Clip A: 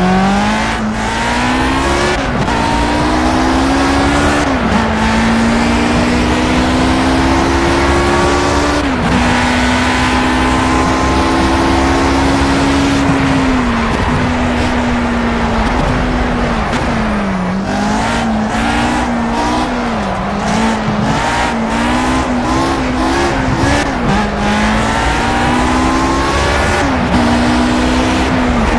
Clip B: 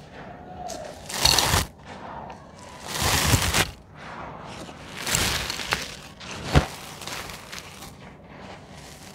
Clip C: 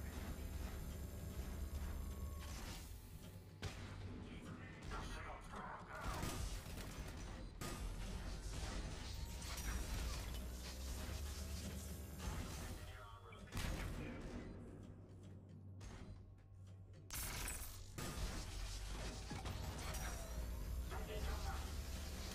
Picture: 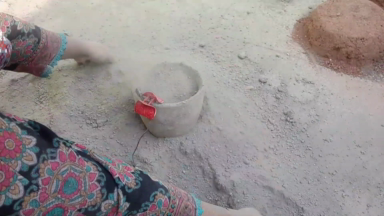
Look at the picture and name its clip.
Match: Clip B